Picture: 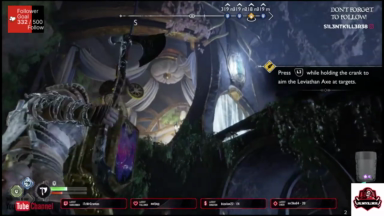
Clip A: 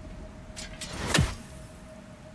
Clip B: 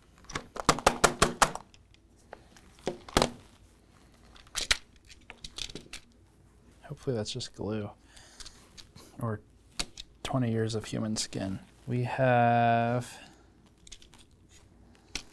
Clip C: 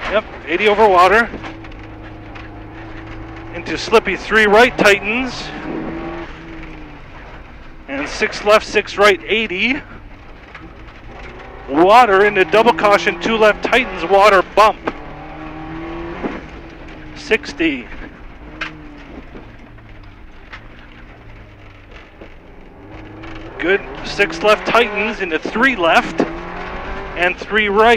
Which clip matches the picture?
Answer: A